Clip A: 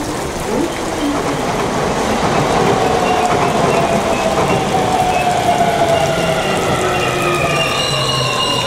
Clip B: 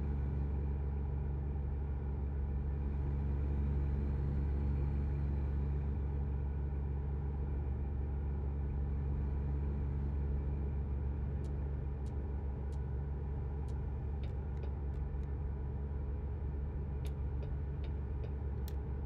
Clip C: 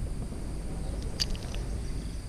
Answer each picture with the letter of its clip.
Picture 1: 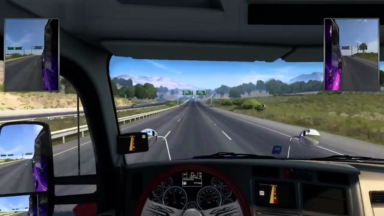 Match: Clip B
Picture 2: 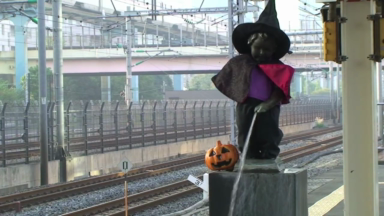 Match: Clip A